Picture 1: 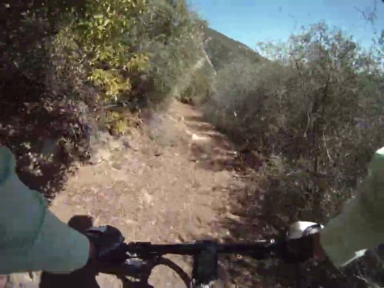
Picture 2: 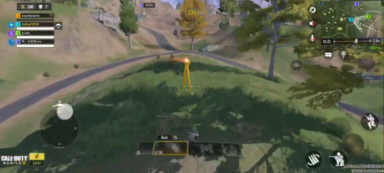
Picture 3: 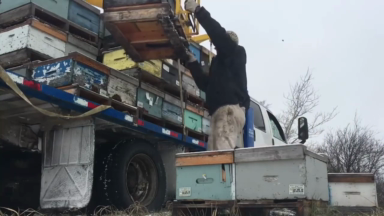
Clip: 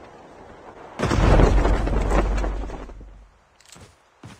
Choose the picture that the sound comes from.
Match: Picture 2